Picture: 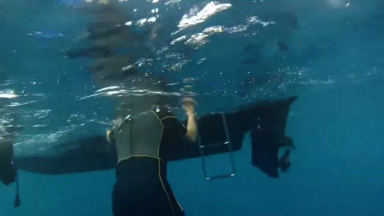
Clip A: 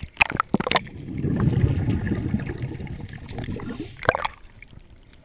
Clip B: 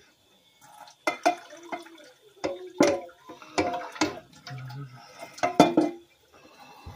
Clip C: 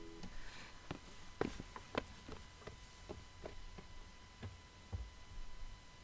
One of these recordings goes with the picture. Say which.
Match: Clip A